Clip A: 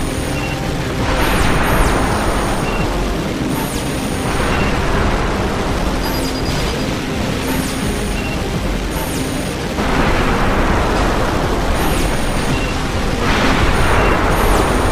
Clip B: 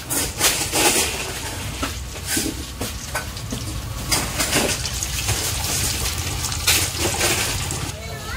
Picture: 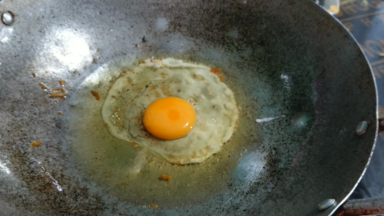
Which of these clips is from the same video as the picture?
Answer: B